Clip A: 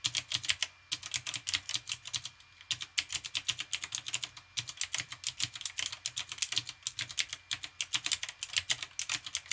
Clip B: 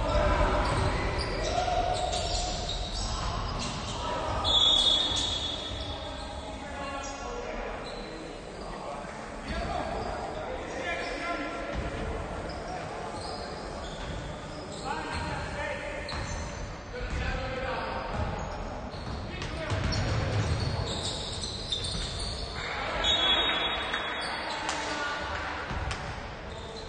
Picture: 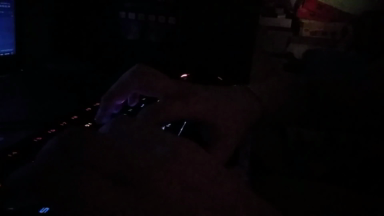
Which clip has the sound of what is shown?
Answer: A